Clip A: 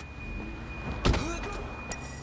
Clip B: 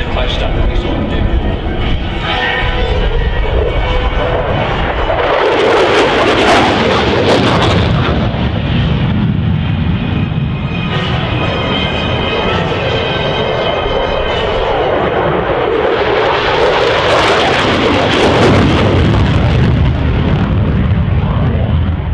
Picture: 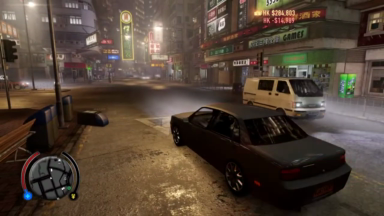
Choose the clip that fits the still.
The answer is A